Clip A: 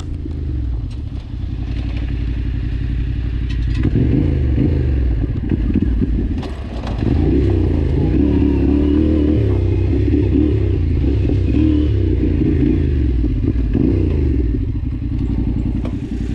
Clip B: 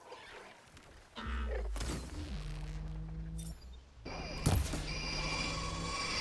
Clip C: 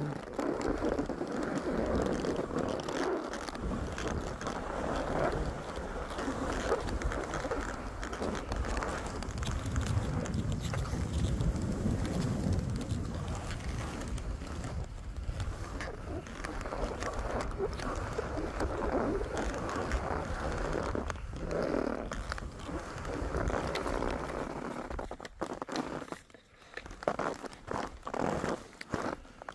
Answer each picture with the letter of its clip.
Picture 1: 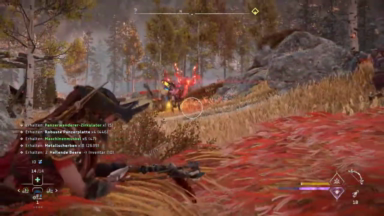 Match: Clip B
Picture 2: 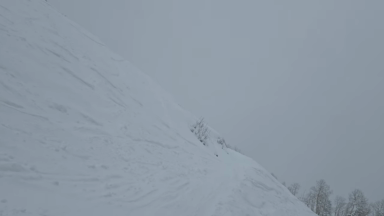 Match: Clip C